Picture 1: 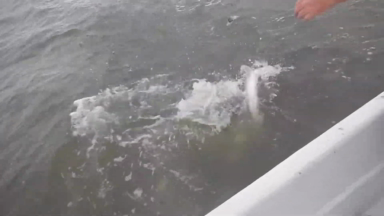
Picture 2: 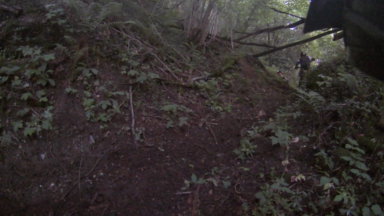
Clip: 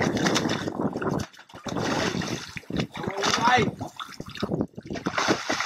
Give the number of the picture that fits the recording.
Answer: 1